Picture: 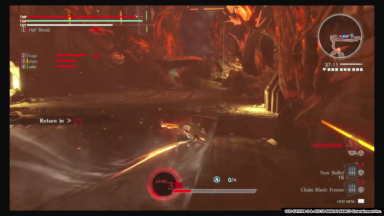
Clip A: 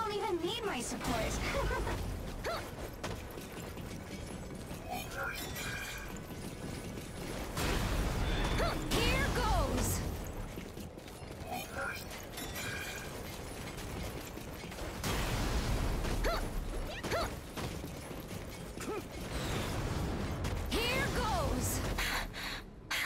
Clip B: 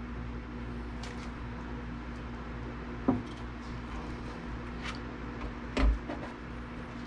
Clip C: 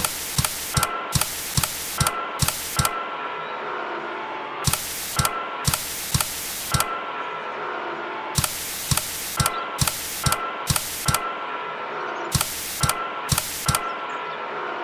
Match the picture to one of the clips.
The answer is A